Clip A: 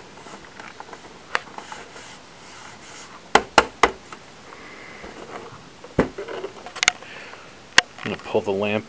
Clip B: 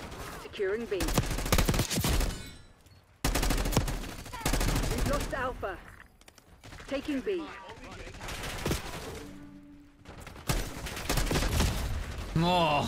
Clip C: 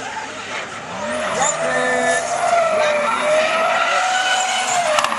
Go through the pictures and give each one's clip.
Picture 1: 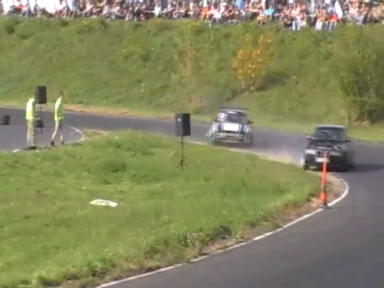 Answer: C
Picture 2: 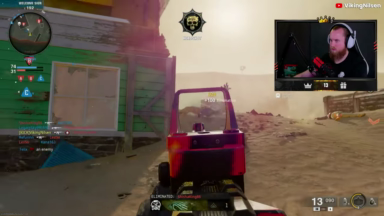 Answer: B